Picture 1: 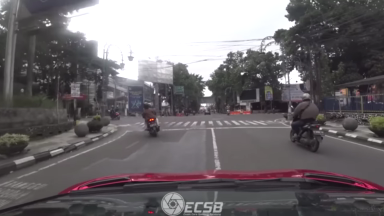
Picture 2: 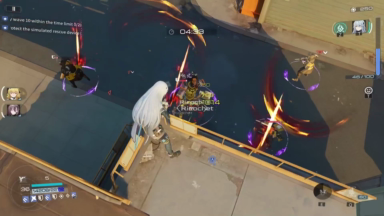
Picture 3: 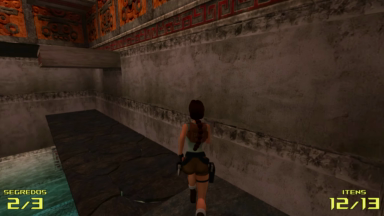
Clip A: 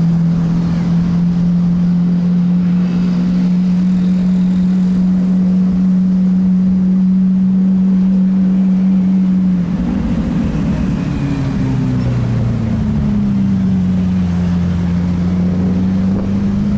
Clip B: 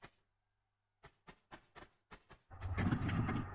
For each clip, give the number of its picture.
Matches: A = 1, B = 3